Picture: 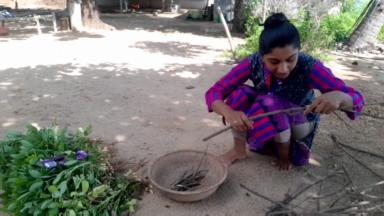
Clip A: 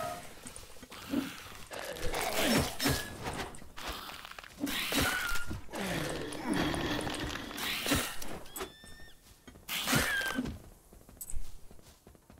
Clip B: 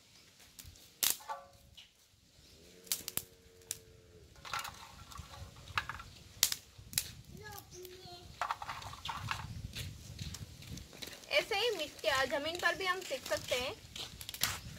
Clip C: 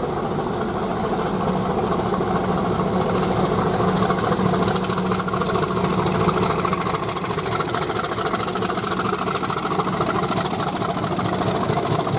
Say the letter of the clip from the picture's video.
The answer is B